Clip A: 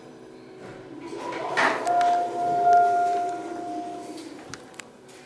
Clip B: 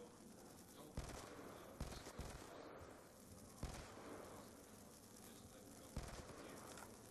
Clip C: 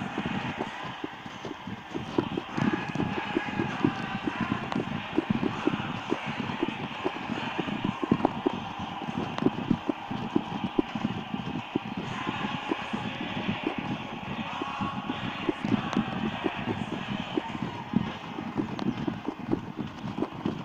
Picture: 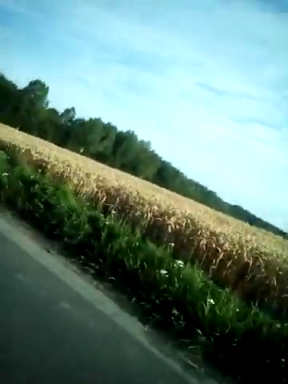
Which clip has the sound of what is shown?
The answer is C